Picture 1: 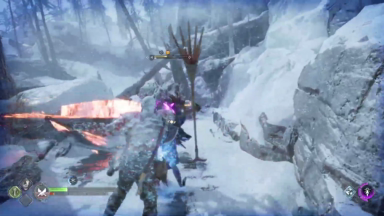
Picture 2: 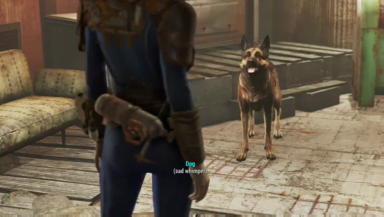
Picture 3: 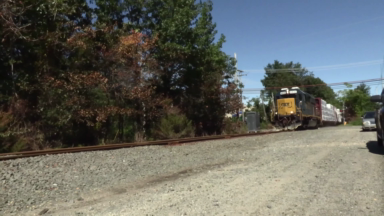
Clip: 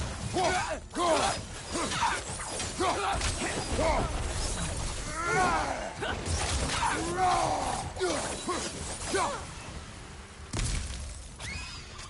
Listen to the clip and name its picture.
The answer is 1